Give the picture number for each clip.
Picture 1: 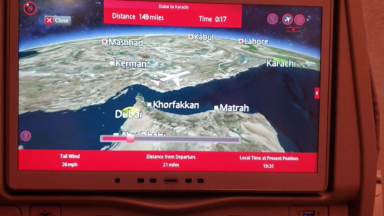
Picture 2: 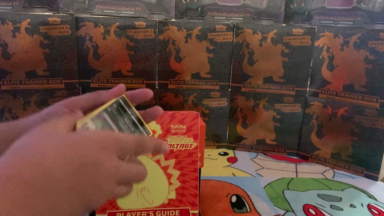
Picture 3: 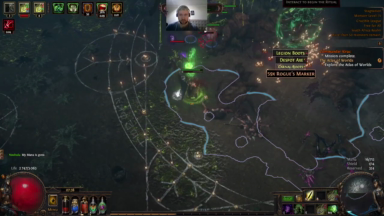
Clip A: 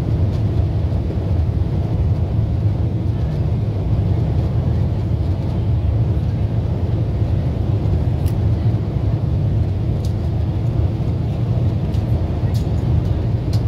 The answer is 1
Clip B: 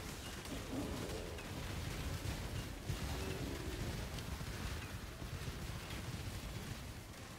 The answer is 3